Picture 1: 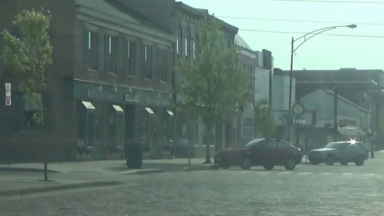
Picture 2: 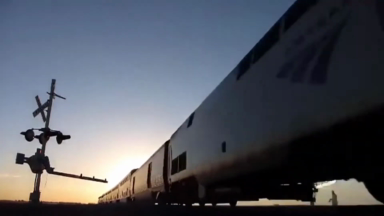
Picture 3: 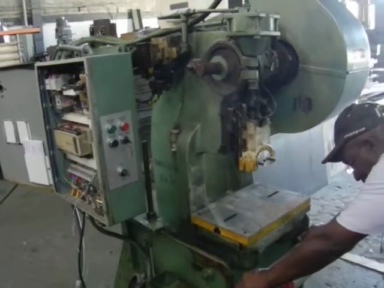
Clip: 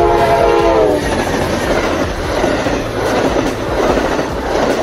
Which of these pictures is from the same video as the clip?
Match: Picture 2